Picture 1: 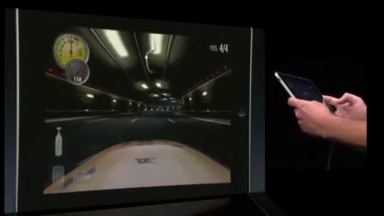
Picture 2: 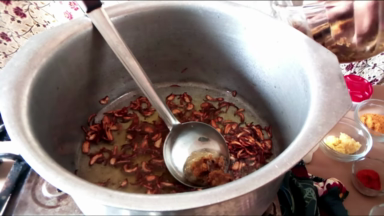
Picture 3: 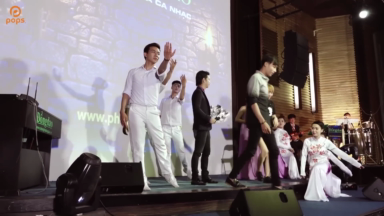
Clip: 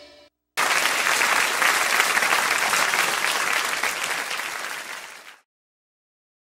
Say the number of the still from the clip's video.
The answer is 3